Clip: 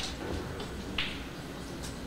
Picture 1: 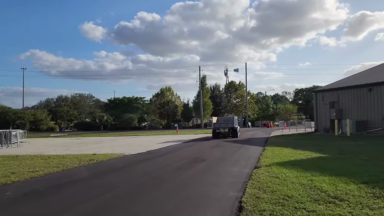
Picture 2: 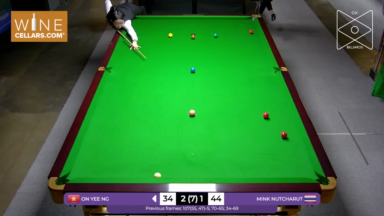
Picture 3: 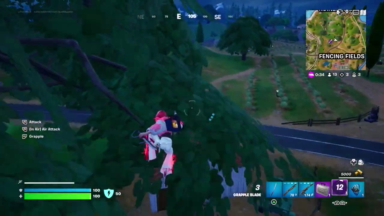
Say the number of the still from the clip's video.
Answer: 2